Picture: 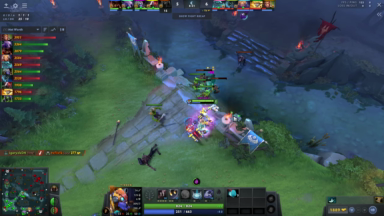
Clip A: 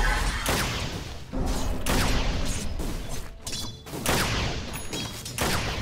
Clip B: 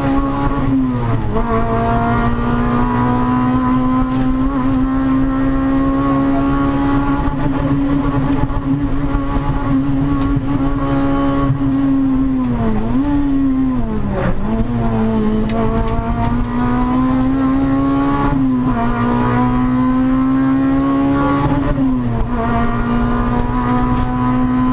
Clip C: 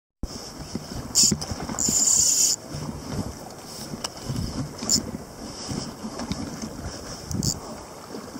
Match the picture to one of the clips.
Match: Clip A